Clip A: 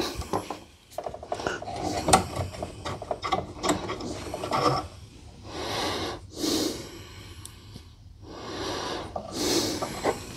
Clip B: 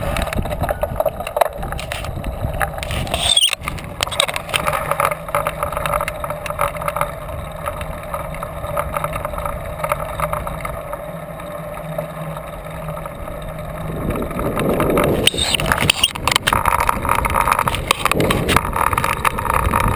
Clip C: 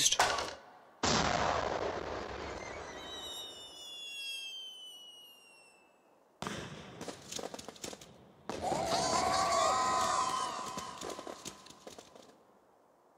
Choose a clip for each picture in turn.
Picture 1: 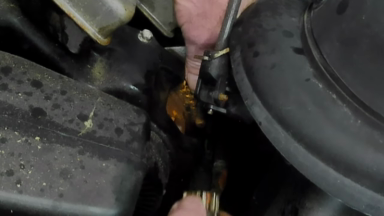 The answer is A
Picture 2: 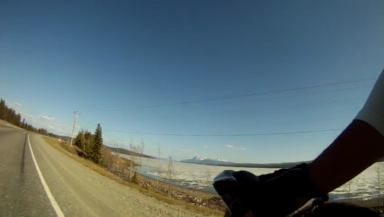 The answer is B